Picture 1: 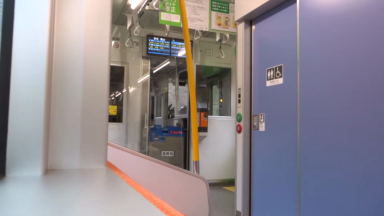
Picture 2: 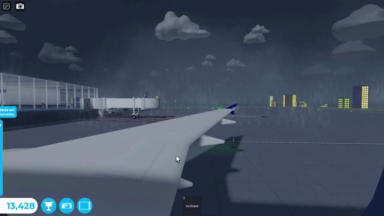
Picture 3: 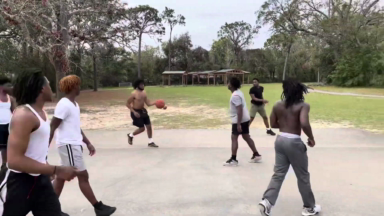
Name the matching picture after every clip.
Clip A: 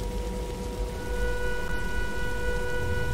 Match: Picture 2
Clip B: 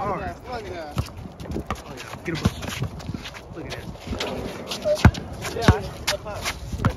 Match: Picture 3